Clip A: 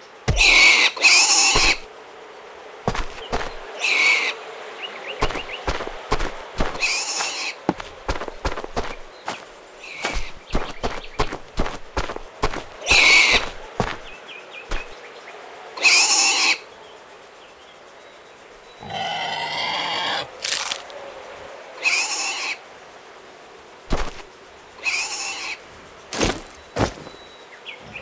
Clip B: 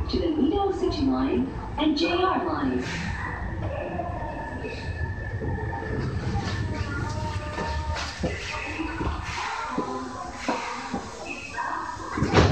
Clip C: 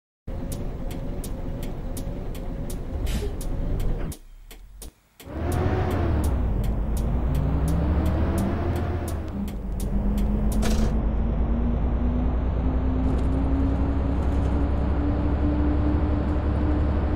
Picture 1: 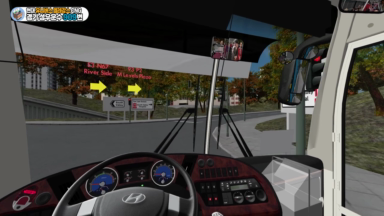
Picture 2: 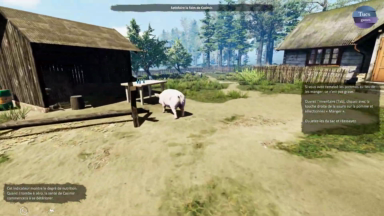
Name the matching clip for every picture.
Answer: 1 C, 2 A